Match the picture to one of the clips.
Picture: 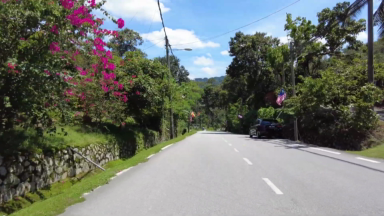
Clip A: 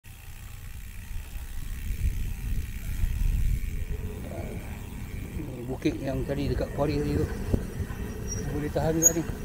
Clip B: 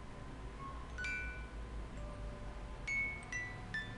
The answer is A